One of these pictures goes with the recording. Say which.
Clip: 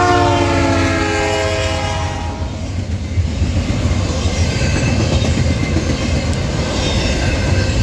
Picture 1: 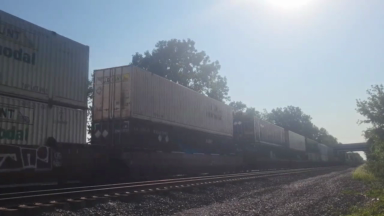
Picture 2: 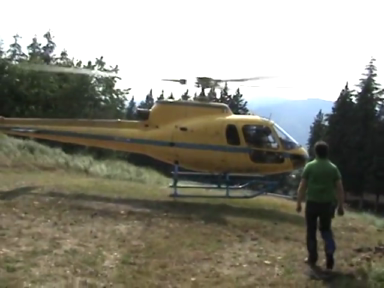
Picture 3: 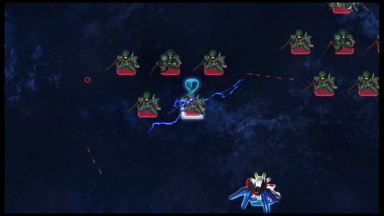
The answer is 1